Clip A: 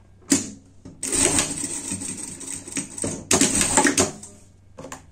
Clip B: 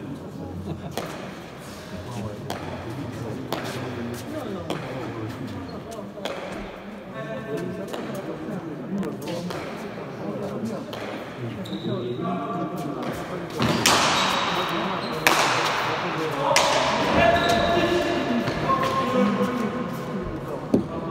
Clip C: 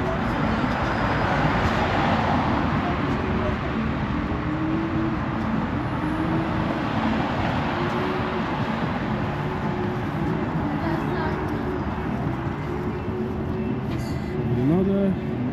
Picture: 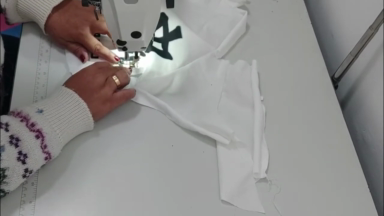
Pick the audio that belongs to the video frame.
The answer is A